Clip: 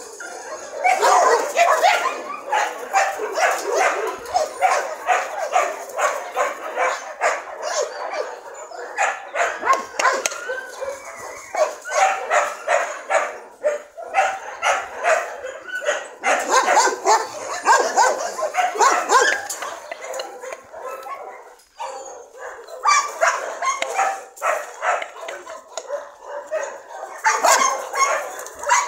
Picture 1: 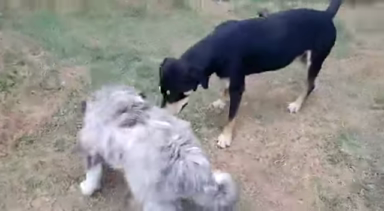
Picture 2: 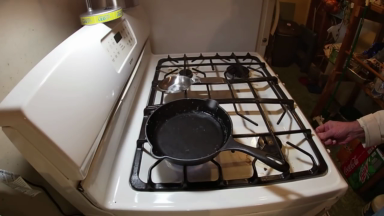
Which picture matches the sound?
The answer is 1